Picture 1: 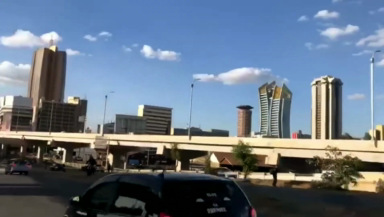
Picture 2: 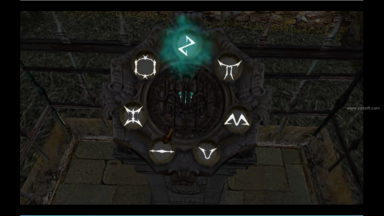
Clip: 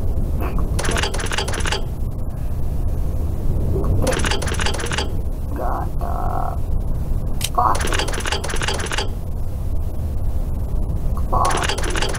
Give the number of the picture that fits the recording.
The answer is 2